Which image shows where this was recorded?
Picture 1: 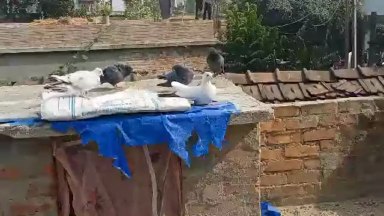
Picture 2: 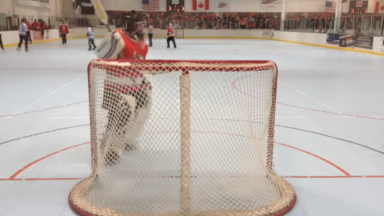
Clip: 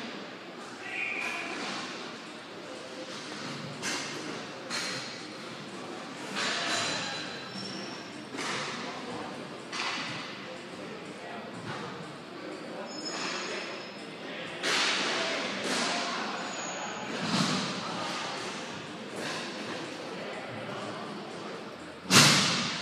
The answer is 2